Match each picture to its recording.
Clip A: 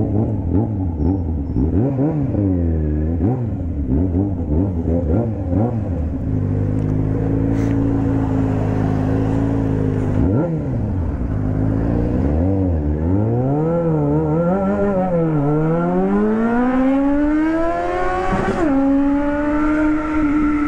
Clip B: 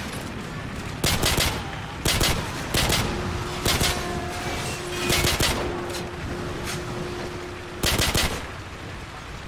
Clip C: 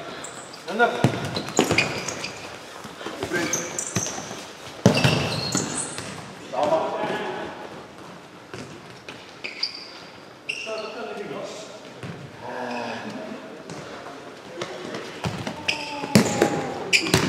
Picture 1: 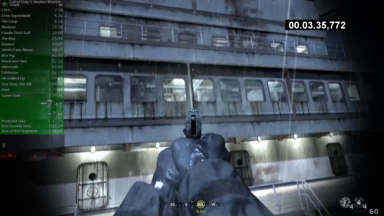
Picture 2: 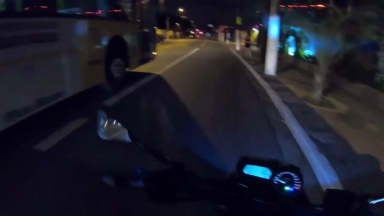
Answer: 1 B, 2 A